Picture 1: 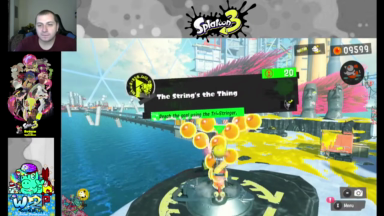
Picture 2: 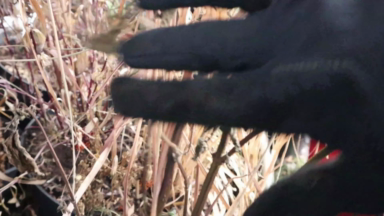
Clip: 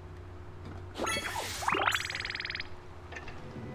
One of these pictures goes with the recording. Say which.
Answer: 1